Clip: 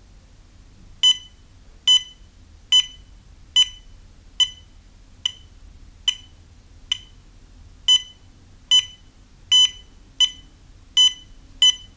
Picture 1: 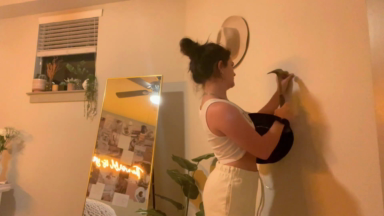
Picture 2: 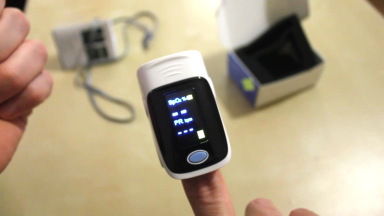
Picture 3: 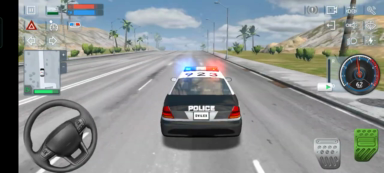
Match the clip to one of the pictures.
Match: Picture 2